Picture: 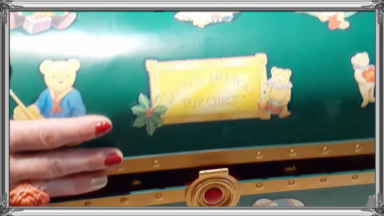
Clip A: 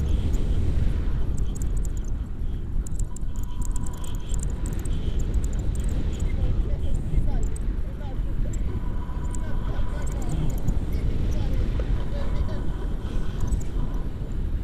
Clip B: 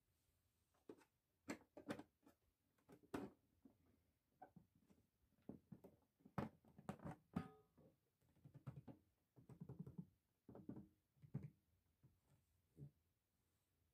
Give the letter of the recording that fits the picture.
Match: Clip B